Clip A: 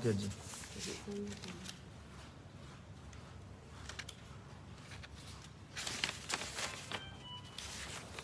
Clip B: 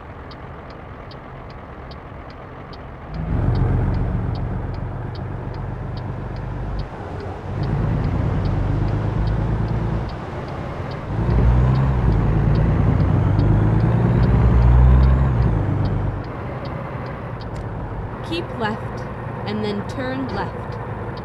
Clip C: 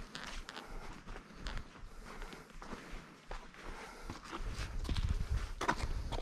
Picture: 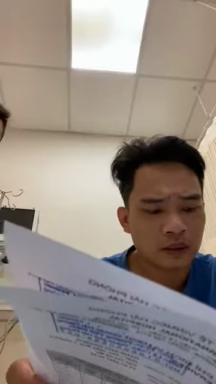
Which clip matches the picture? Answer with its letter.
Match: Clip A